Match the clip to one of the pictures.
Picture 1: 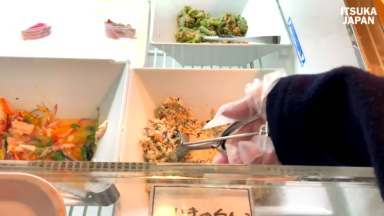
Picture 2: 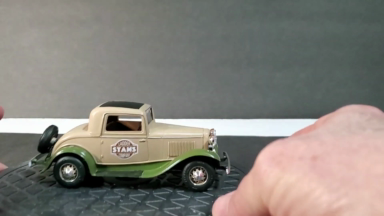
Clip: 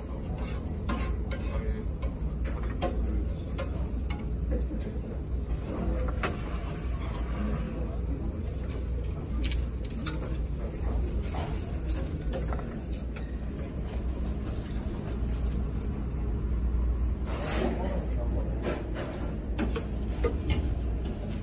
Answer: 1